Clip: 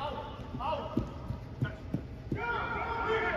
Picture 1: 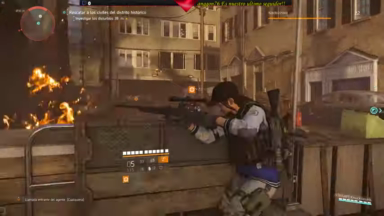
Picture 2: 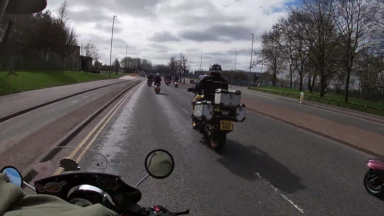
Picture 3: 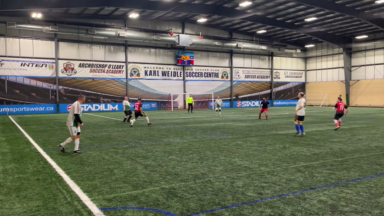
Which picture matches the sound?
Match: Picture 3